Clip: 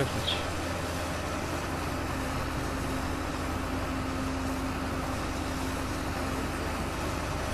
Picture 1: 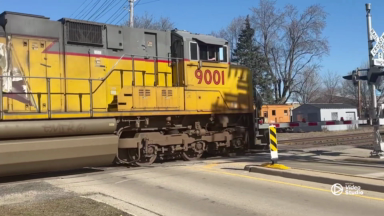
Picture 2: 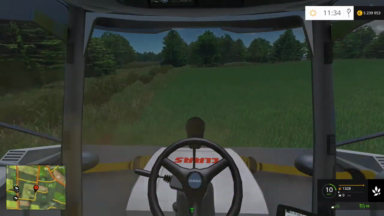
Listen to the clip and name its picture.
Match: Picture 2